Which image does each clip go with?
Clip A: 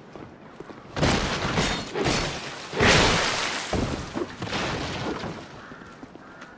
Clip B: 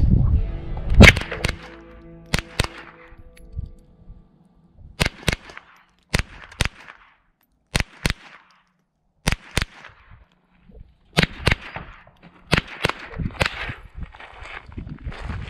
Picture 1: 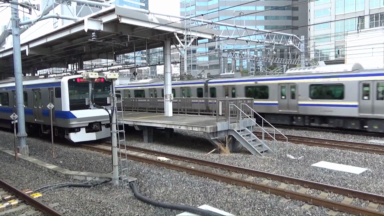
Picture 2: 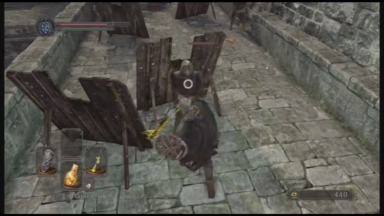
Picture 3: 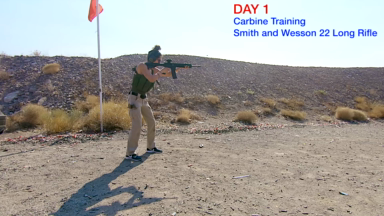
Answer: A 2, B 3